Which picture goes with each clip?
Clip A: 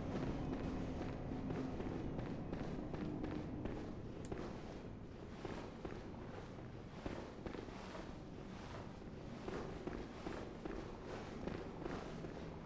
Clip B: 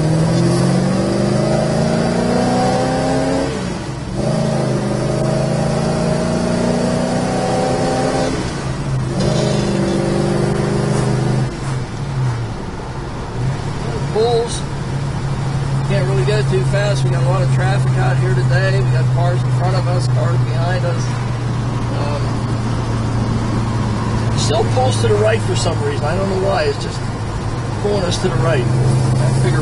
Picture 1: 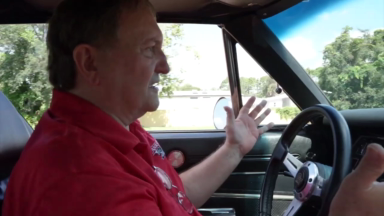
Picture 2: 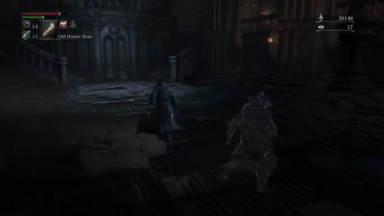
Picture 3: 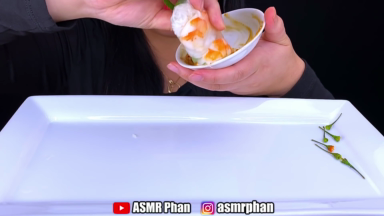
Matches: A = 2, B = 1